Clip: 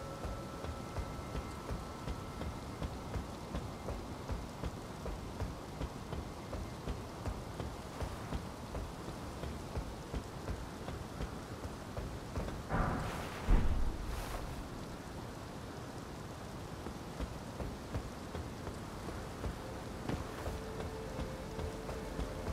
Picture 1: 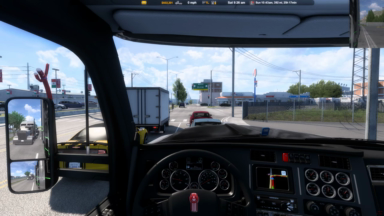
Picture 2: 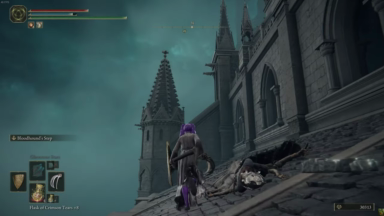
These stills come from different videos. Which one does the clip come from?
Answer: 2